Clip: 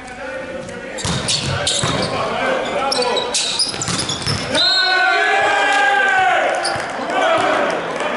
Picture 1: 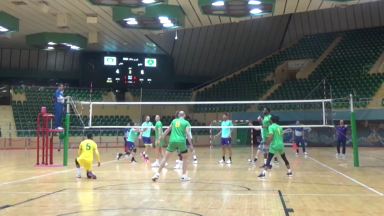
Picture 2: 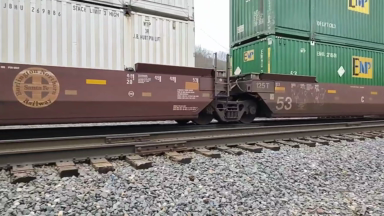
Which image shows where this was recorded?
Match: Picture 1